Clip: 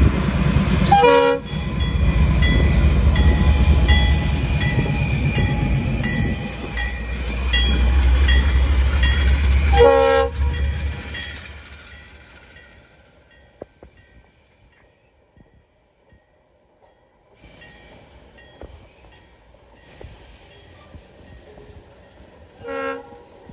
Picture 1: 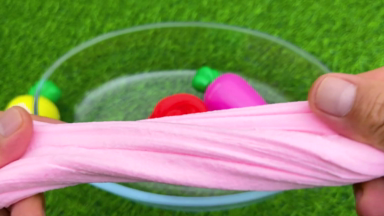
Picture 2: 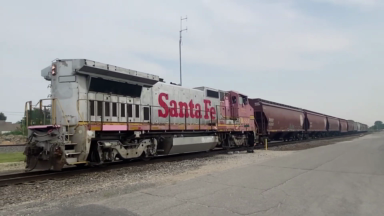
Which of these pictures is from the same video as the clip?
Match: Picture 2